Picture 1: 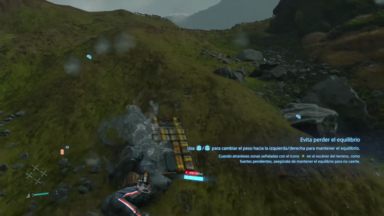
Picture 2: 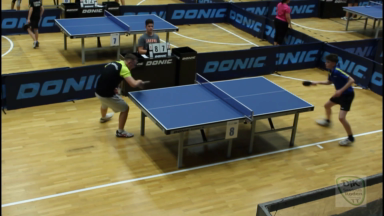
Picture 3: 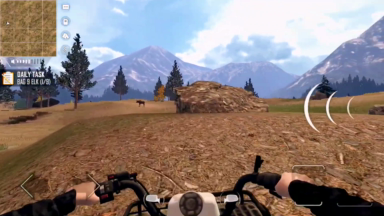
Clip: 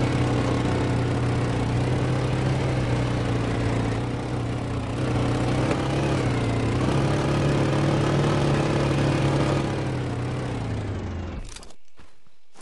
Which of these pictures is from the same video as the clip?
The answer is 3